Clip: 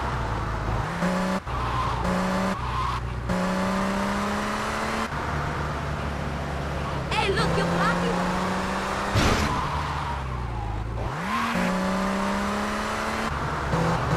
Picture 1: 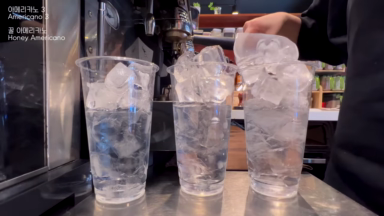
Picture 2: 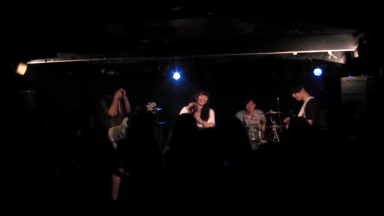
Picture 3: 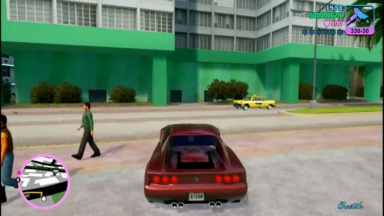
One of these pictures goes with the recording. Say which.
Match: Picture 3